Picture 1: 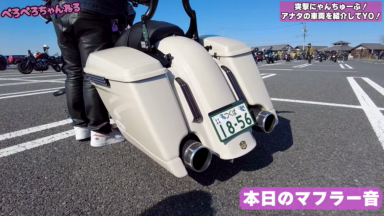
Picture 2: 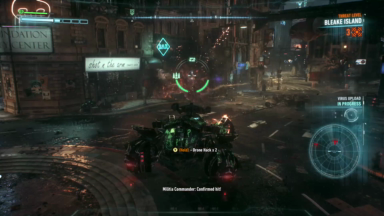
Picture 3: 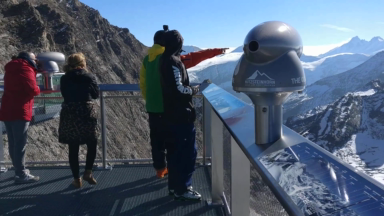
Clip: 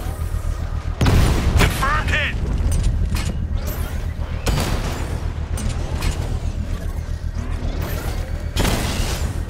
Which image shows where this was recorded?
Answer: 2